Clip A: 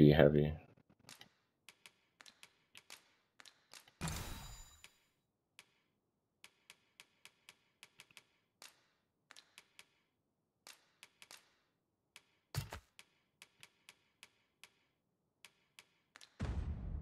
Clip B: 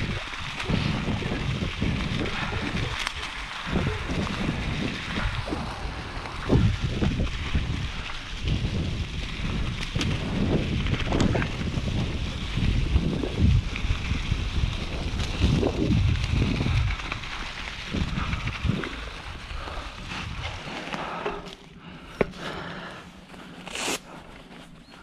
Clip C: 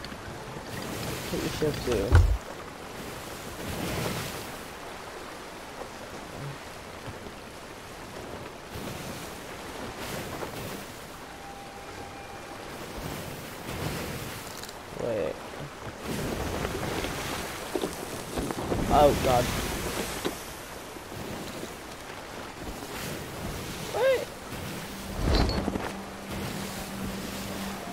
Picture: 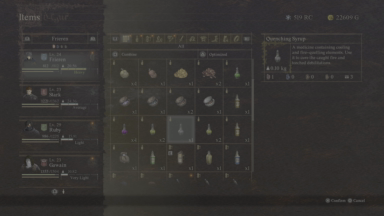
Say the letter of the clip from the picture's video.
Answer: A